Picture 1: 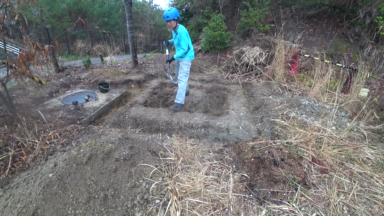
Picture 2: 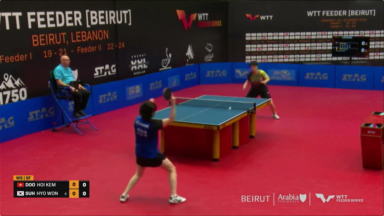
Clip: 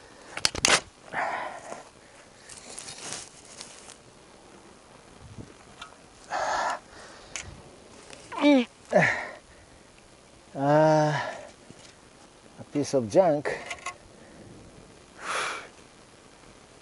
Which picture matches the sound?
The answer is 1